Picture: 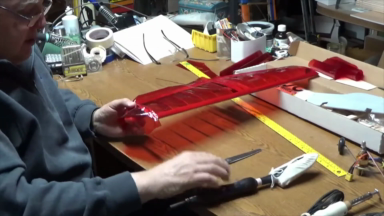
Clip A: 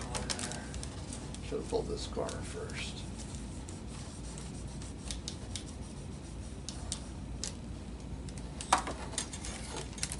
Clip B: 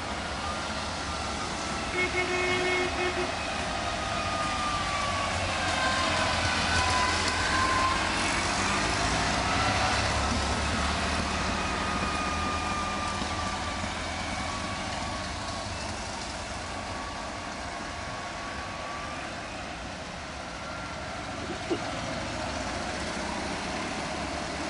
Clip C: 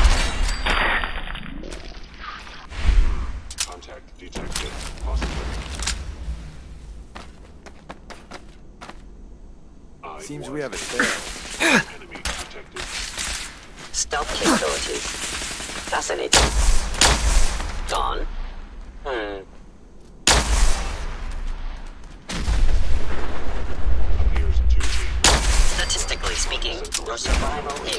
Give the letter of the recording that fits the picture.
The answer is A